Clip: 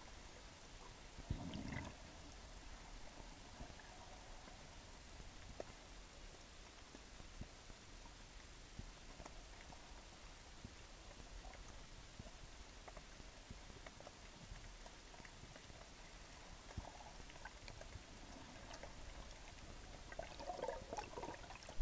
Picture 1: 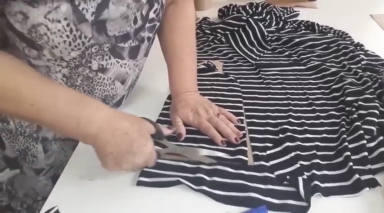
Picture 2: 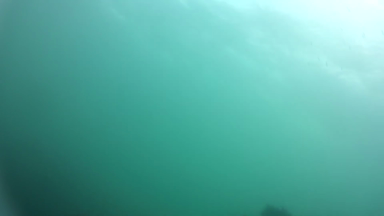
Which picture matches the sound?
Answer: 2